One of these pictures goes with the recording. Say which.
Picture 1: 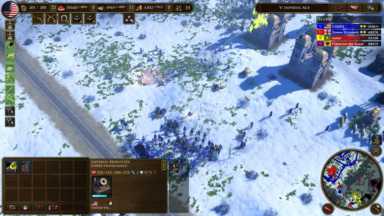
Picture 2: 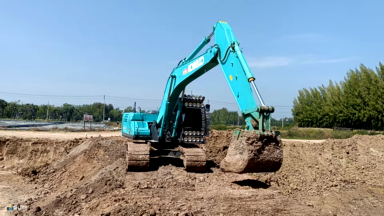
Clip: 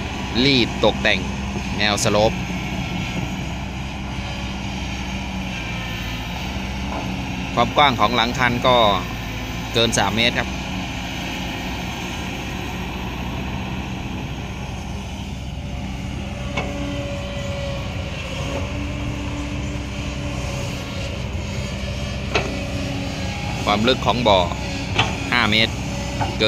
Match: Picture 2